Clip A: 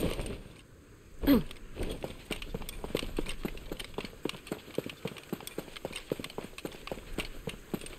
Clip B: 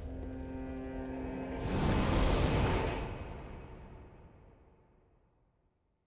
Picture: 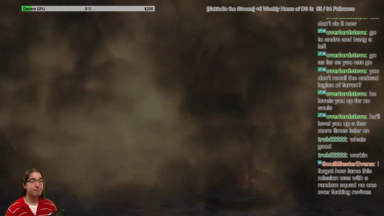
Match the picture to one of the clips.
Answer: B